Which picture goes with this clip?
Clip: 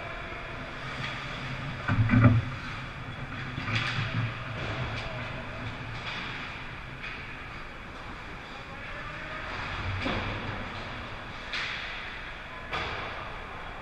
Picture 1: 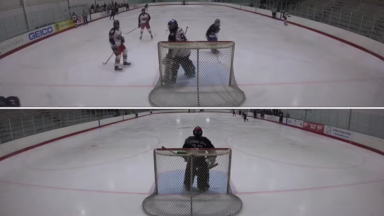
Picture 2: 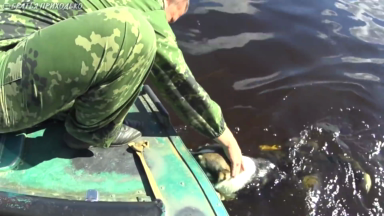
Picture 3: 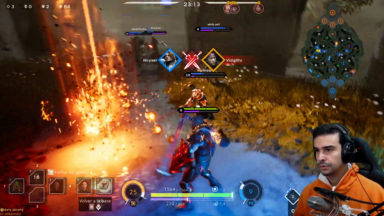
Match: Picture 1